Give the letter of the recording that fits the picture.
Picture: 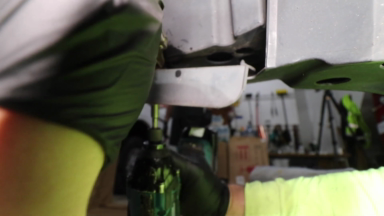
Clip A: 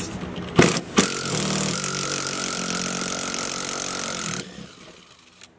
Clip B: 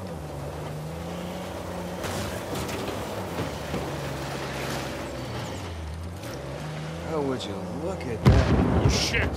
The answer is A